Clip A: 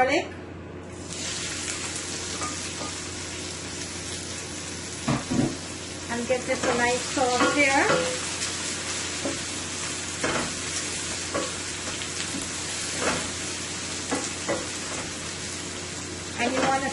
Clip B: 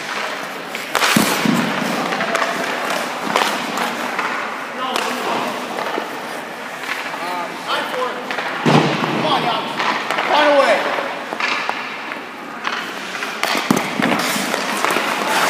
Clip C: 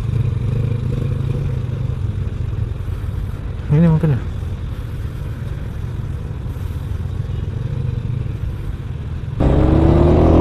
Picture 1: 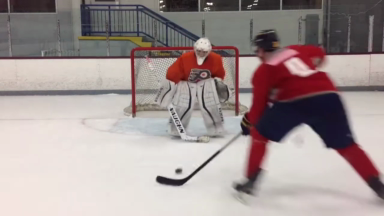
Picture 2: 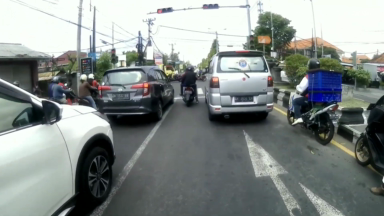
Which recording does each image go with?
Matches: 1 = B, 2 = C